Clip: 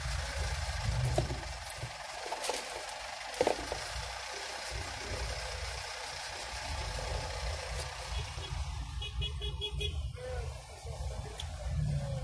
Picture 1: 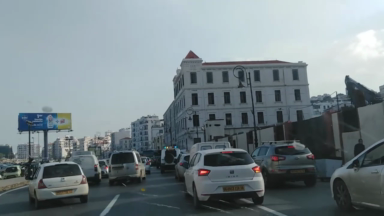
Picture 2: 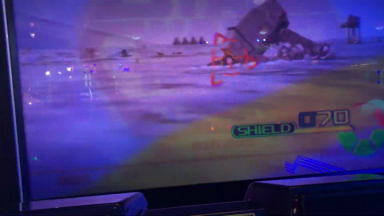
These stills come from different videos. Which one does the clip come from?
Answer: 1